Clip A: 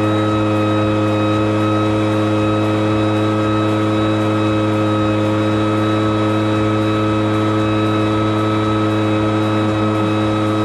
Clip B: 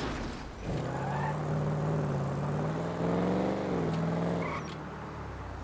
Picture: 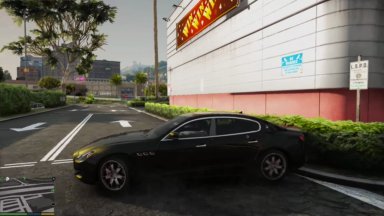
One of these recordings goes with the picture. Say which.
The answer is B